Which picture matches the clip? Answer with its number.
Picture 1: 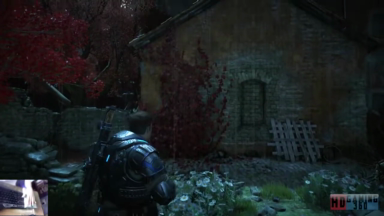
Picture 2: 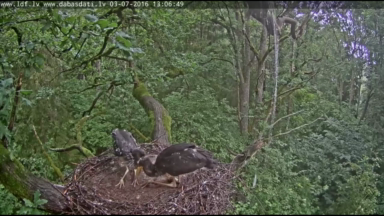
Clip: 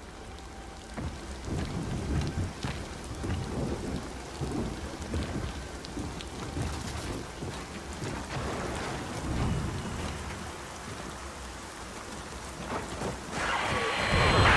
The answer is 1